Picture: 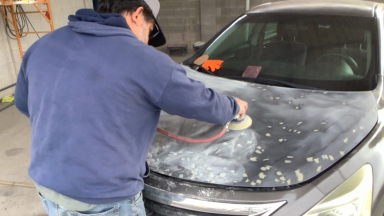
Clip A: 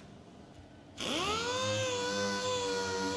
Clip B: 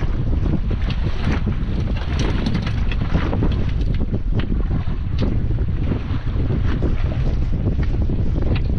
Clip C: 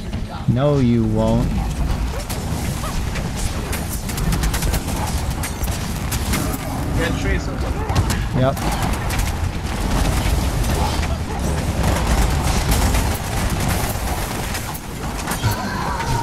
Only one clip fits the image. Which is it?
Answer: A